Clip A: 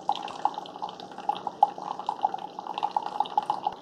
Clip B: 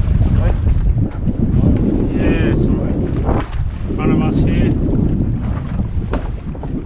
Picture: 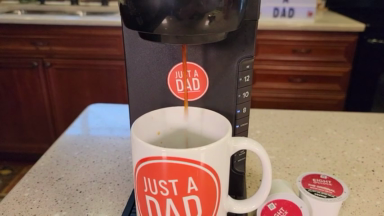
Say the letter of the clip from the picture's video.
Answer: A